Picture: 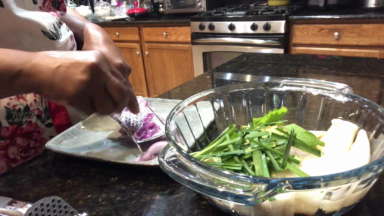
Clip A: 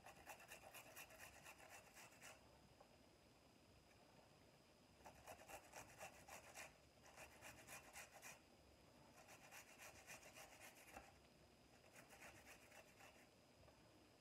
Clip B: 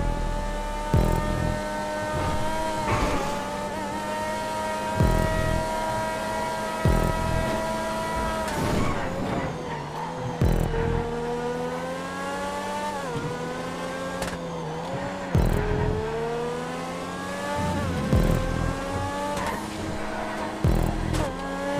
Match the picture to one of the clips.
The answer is A